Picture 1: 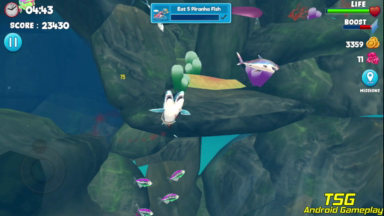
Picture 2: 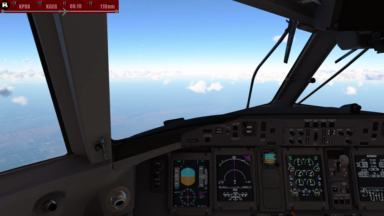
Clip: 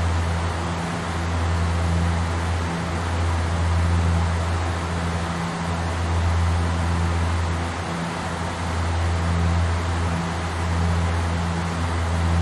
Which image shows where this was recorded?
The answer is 2